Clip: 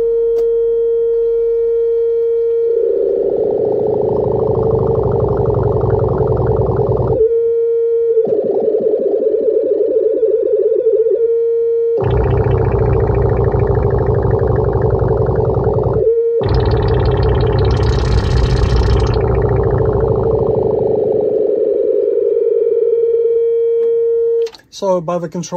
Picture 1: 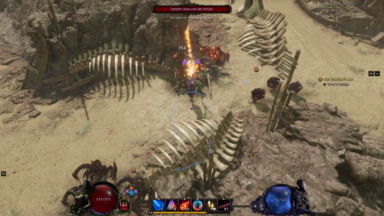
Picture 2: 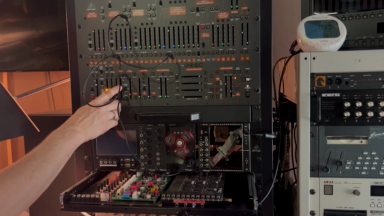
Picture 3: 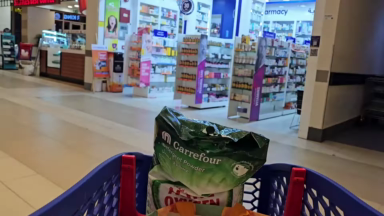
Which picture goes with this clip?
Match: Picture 2